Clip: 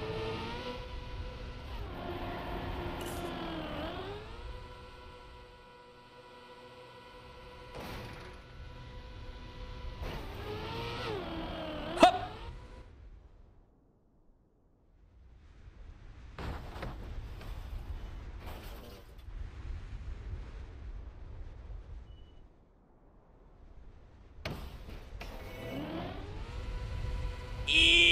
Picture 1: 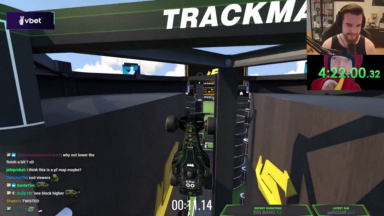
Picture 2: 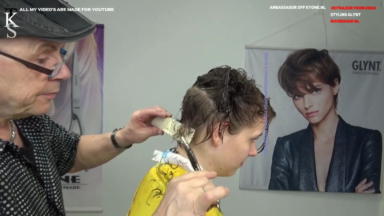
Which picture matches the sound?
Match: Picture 1